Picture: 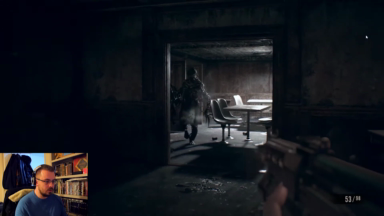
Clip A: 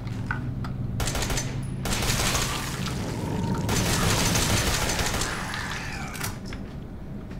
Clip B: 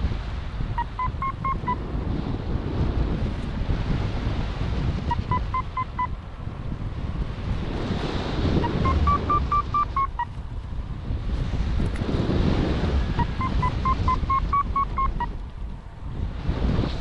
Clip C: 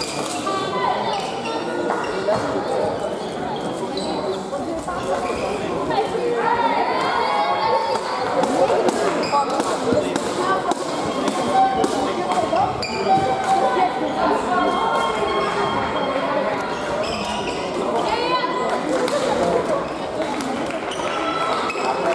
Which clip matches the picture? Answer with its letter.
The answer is A